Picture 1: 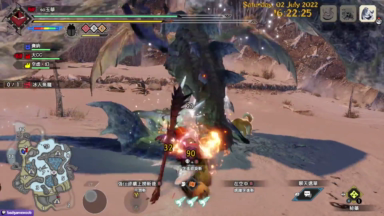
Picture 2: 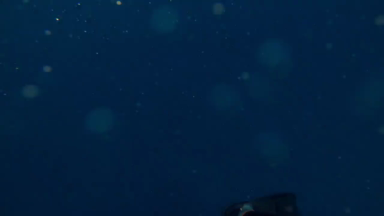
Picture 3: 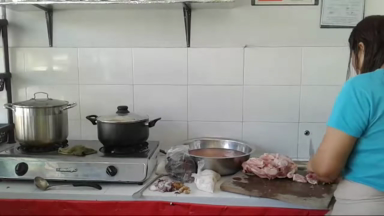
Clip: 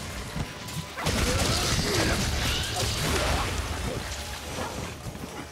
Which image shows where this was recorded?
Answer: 1